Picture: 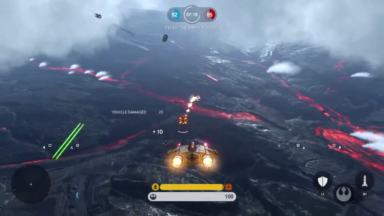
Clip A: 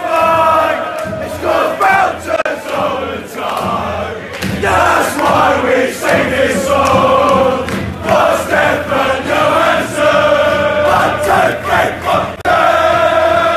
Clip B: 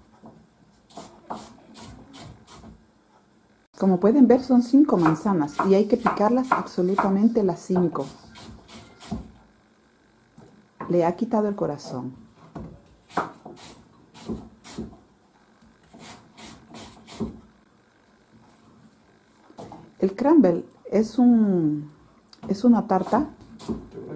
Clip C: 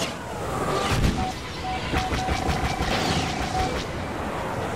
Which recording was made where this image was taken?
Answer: C